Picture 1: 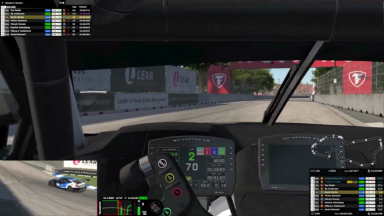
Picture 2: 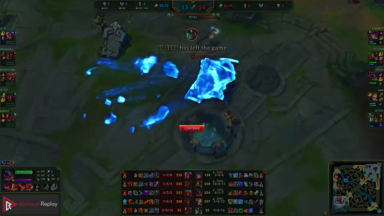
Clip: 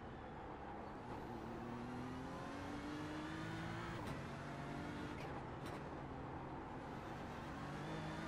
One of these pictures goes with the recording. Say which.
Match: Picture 1